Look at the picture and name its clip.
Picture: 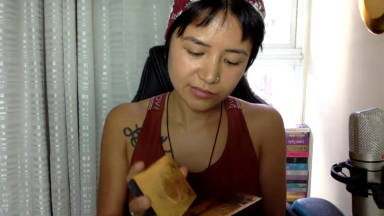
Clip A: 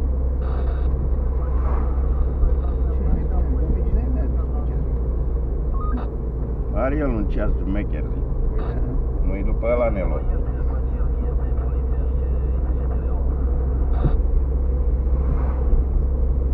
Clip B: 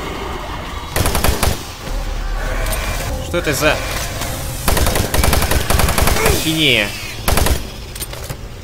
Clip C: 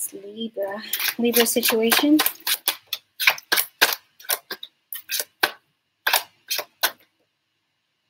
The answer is C